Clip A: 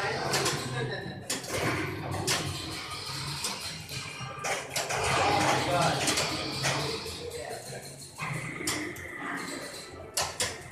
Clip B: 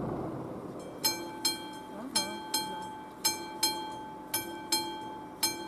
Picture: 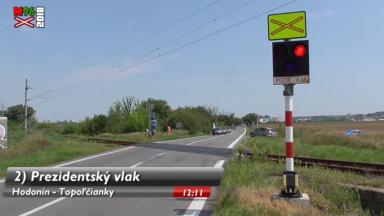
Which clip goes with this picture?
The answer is B